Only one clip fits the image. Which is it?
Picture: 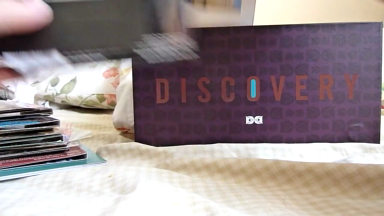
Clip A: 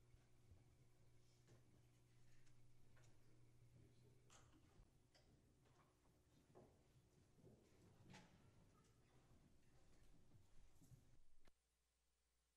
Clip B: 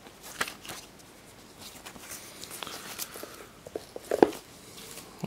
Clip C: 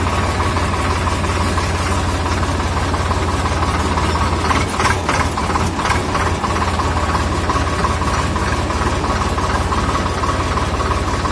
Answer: B